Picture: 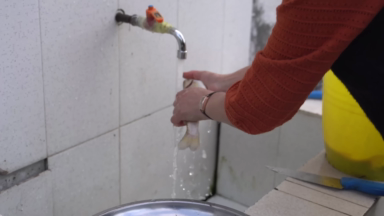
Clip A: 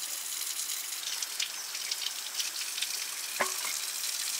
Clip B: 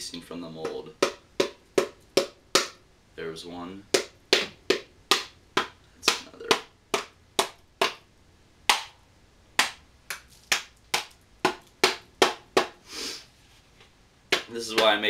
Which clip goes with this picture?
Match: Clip A